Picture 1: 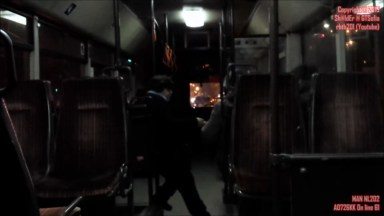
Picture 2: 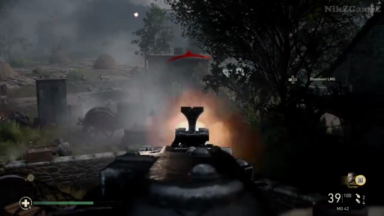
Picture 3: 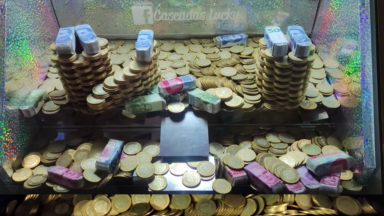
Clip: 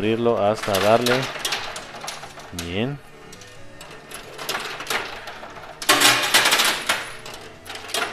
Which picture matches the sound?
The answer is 3